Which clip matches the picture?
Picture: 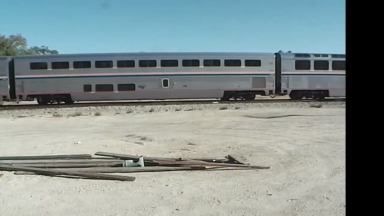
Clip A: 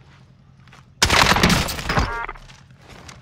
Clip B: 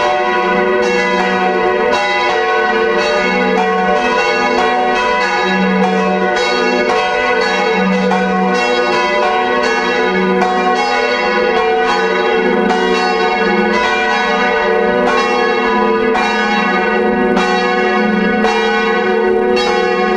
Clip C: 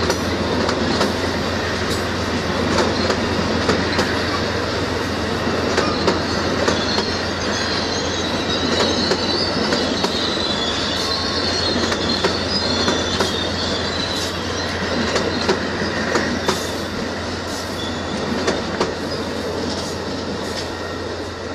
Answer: C